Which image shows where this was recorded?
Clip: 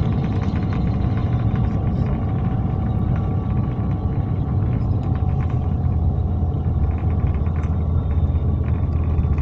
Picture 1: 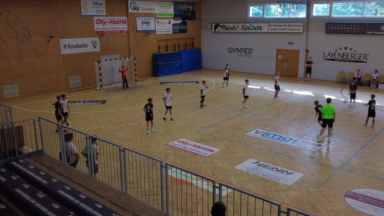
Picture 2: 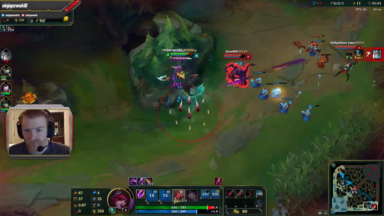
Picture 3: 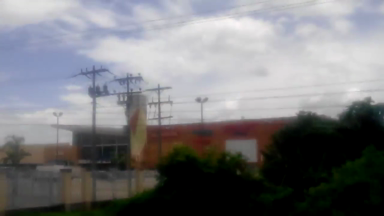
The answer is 3